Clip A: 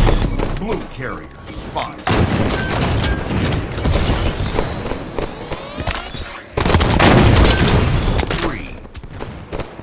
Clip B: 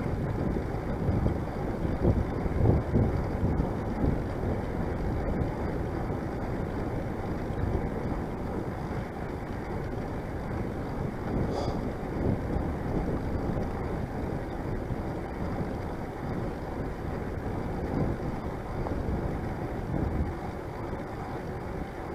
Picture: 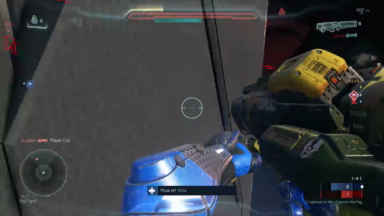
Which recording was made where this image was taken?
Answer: A